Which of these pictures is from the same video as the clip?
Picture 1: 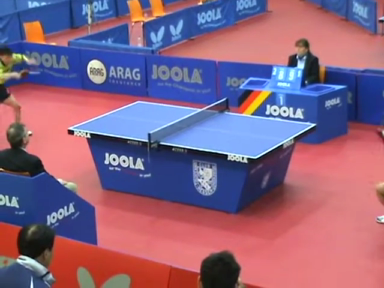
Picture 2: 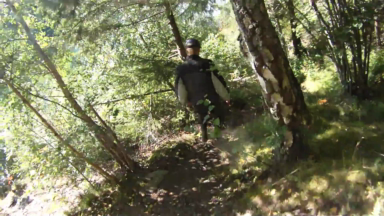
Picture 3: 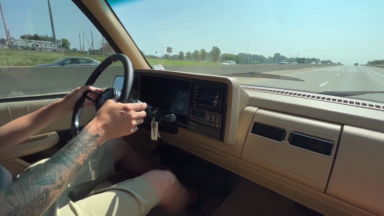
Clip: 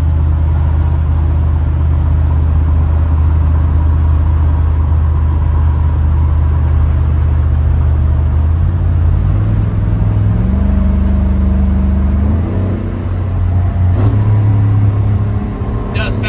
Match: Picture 3